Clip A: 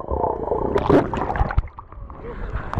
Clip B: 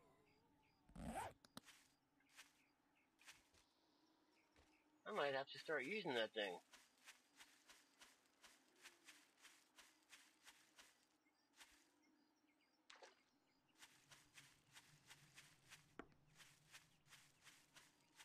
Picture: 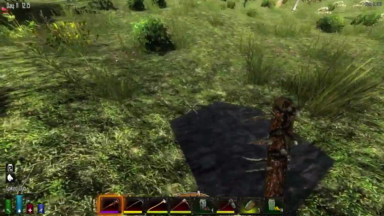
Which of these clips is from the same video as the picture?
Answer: B